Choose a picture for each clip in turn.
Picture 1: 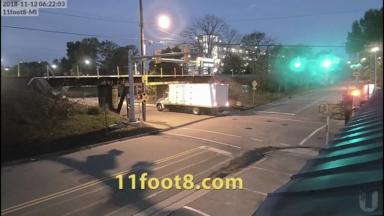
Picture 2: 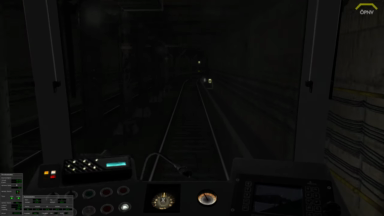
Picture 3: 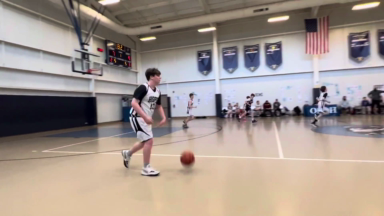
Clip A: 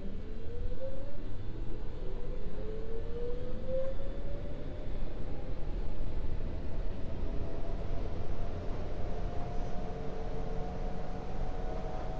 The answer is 2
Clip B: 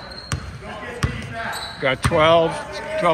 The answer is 3